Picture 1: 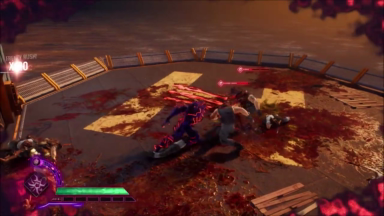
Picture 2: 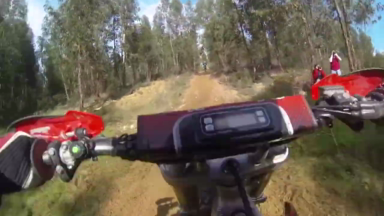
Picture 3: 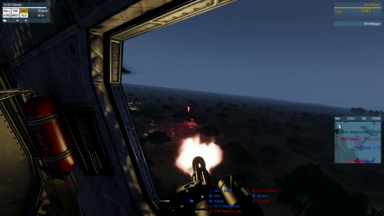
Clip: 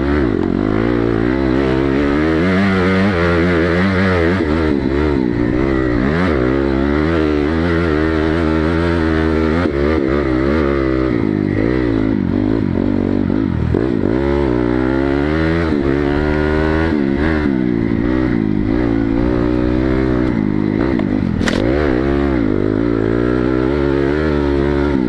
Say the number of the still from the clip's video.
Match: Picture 2